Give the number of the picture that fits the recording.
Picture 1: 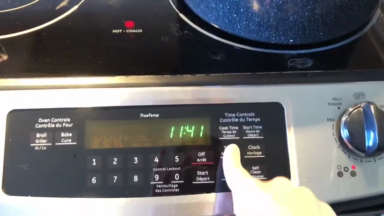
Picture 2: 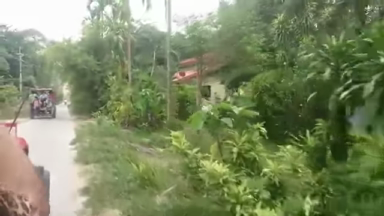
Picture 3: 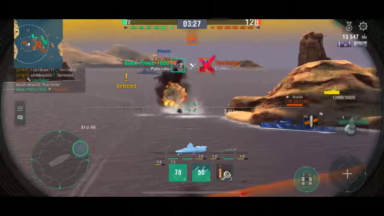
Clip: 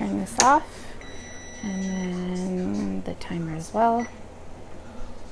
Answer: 1